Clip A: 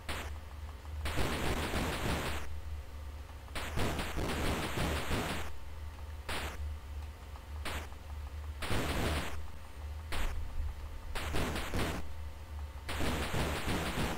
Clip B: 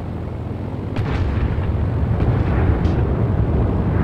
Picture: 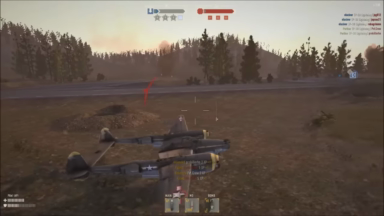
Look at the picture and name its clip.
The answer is B